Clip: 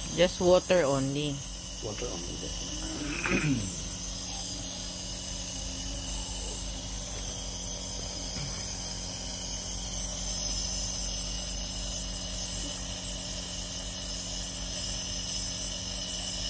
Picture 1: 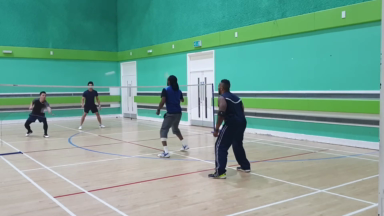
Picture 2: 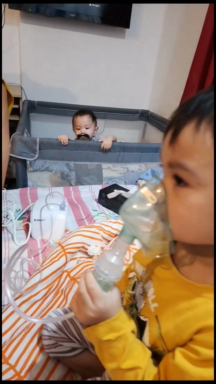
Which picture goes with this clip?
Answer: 2